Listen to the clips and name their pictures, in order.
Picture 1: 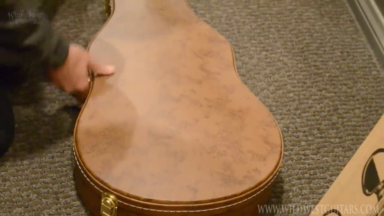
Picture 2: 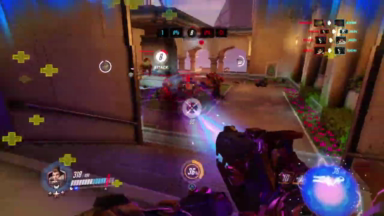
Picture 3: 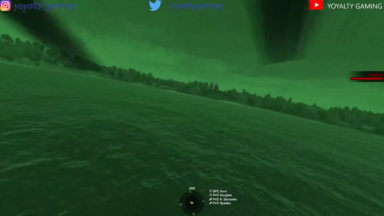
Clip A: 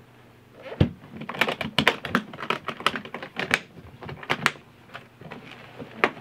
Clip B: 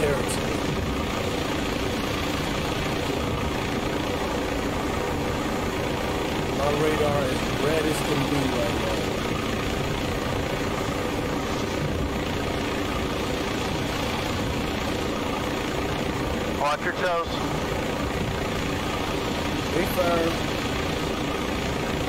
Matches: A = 1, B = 3